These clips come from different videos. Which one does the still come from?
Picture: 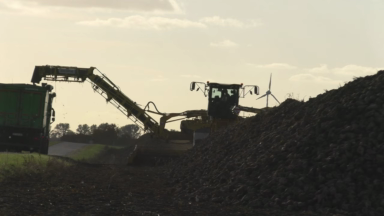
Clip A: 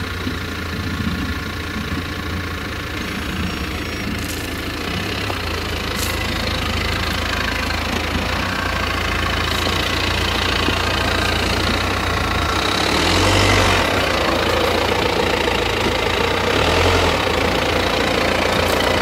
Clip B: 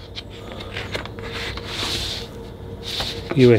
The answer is A